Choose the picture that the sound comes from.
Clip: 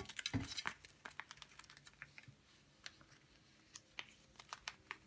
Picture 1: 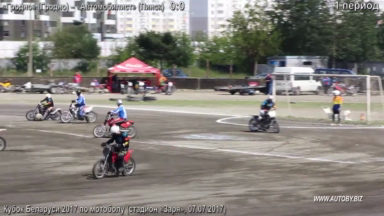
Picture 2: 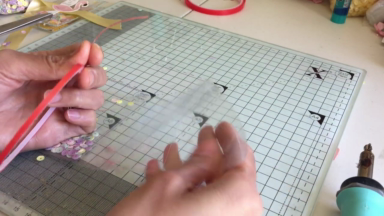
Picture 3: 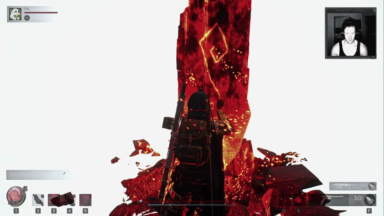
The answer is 2